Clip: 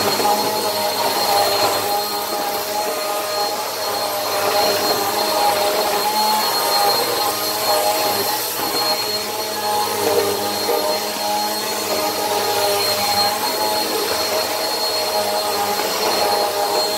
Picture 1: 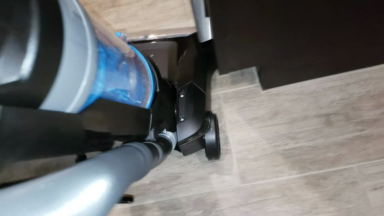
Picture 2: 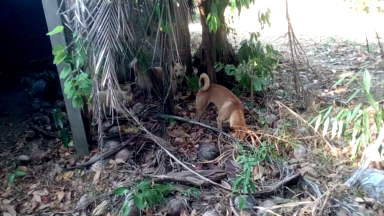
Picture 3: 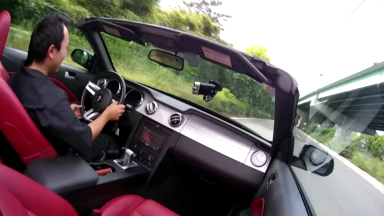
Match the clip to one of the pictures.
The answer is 1